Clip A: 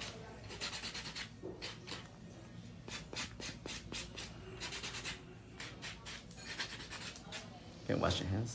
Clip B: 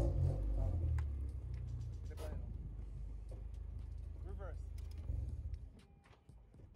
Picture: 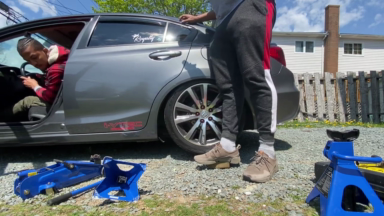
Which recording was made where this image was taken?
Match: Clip B